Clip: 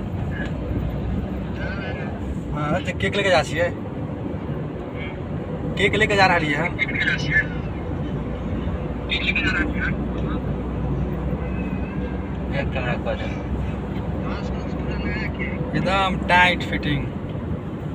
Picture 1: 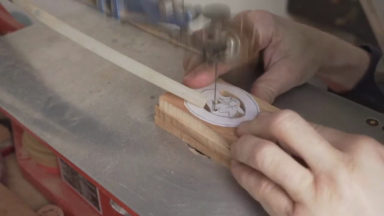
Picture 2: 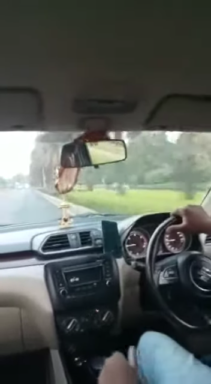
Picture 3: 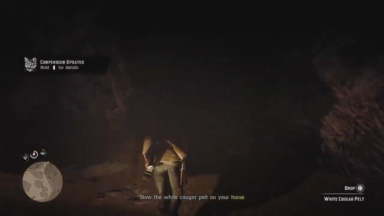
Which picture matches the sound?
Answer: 2